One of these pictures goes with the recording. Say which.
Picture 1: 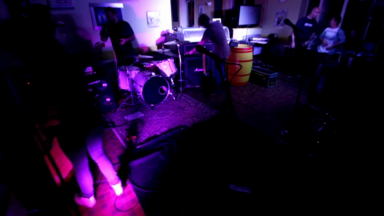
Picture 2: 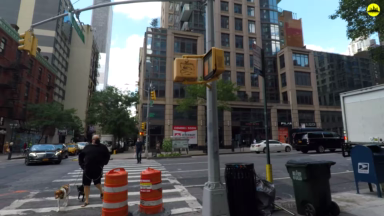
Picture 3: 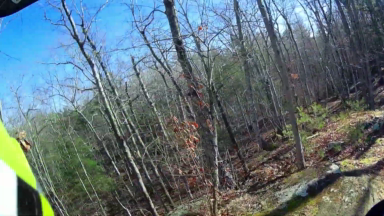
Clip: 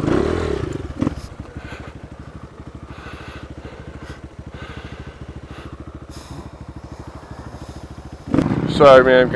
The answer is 3